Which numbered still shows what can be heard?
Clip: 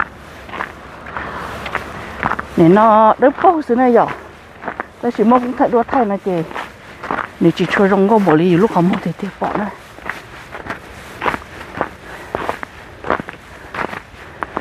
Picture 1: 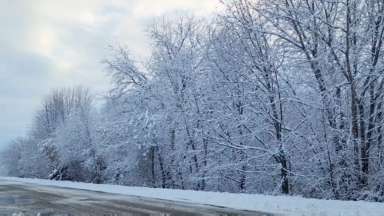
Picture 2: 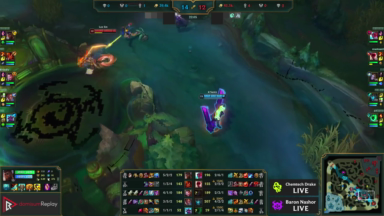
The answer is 1